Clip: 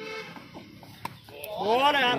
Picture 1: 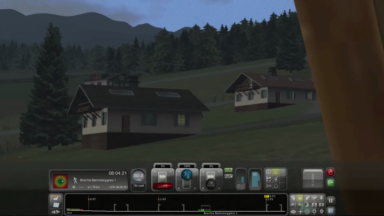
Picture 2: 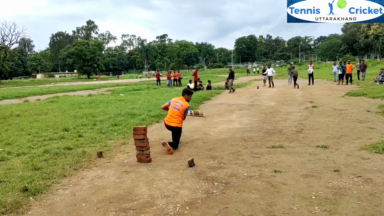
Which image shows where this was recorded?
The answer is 2